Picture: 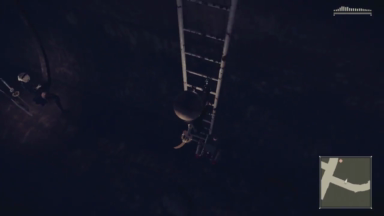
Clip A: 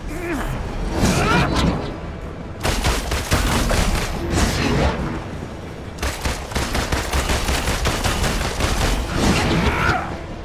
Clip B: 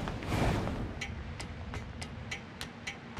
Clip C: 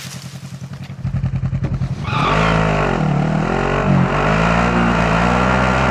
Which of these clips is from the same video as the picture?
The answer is B